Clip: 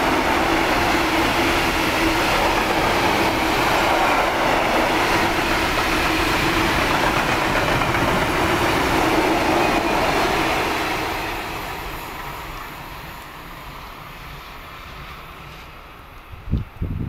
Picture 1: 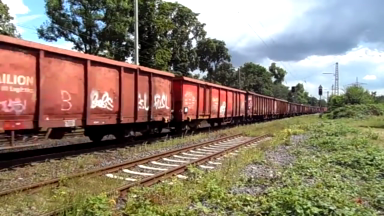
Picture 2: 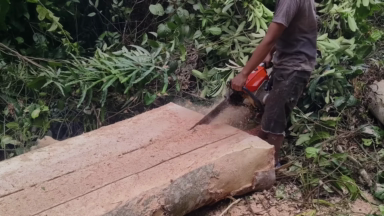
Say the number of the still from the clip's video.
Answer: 1